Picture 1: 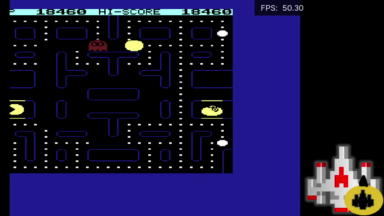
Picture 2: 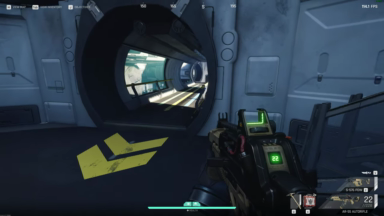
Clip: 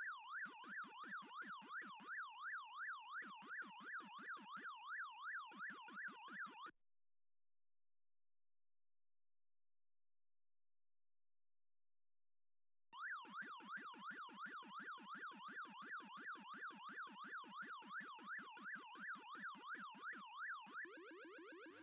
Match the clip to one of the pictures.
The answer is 1